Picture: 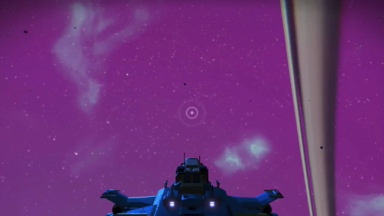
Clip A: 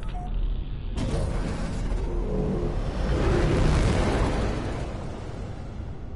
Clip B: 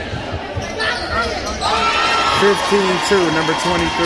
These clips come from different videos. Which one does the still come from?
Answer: A